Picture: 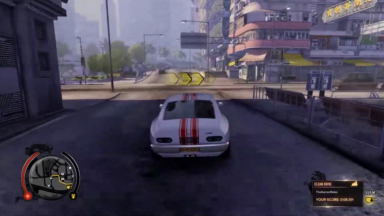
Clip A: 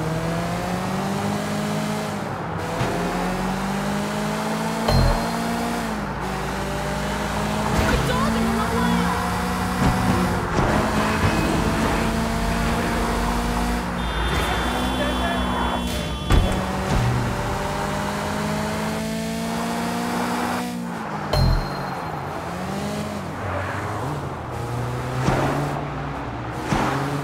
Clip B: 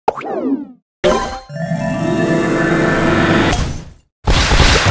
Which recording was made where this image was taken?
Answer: A